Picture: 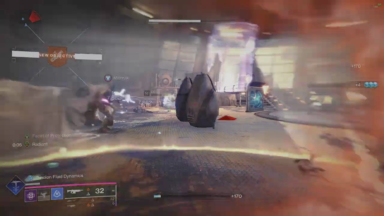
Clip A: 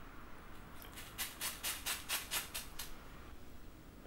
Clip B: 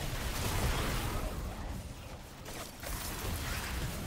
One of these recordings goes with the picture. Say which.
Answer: B